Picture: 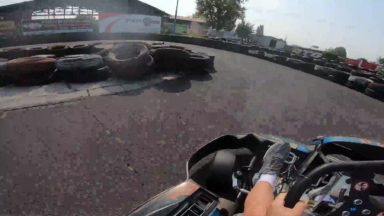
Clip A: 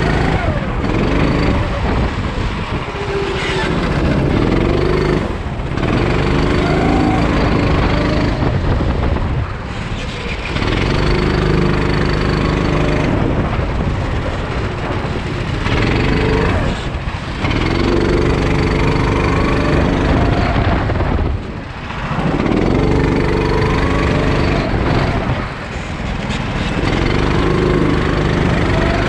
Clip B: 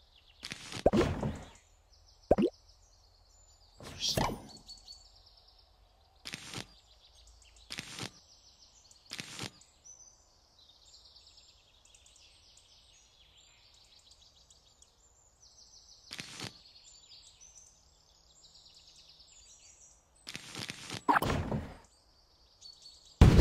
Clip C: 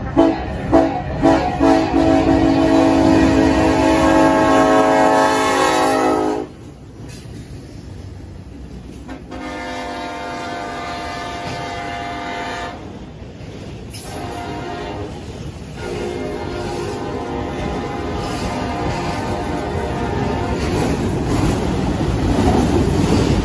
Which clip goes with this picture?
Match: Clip A